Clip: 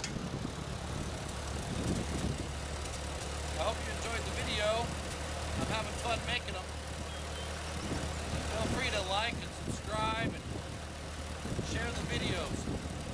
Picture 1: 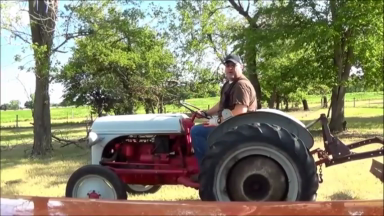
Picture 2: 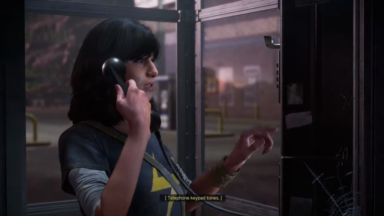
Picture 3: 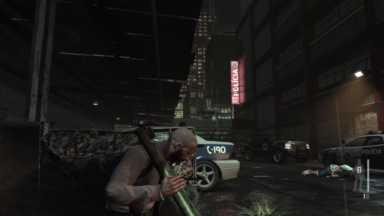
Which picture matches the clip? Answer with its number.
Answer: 1